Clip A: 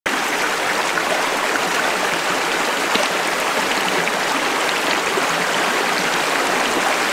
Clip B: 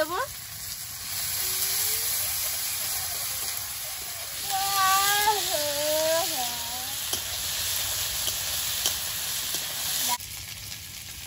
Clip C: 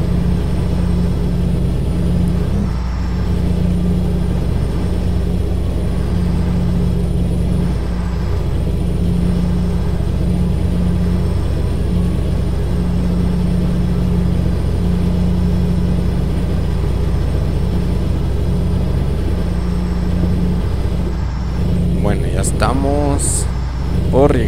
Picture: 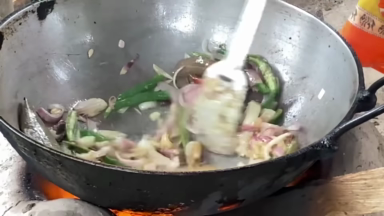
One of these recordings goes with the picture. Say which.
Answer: B